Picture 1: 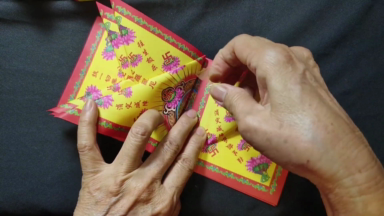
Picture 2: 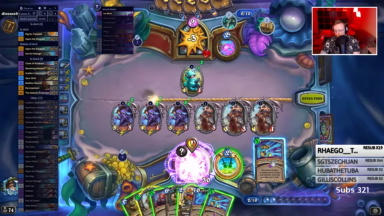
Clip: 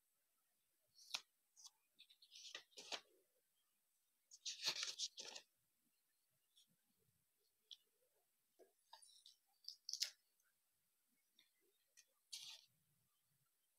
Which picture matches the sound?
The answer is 1